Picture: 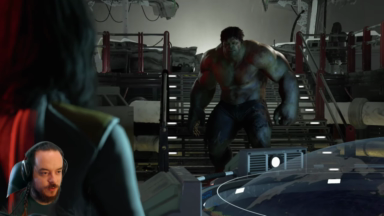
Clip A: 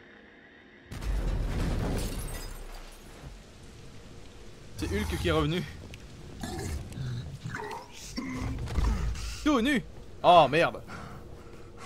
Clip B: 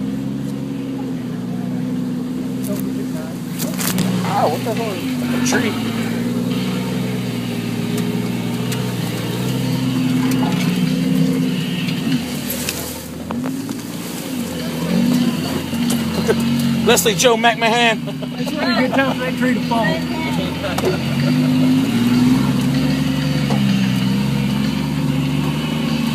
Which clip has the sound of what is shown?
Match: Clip A